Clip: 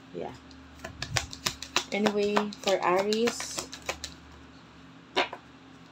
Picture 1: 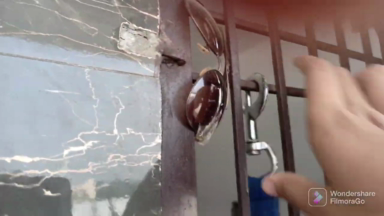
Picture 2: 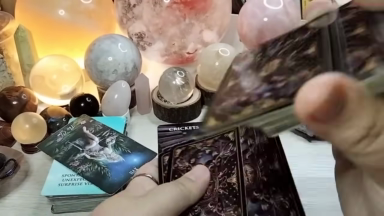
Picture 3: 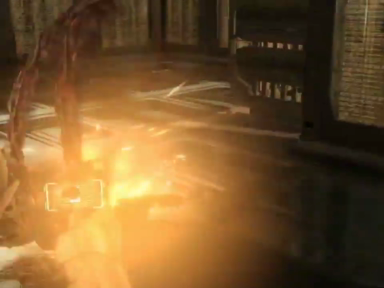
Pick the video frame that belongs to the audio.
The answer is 2